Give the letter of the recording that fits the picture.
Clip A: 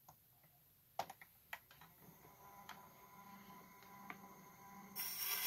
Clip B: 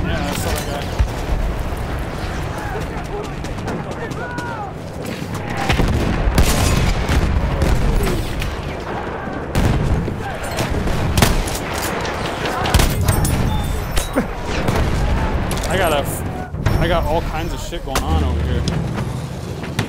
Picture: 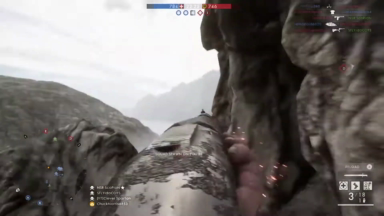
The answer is B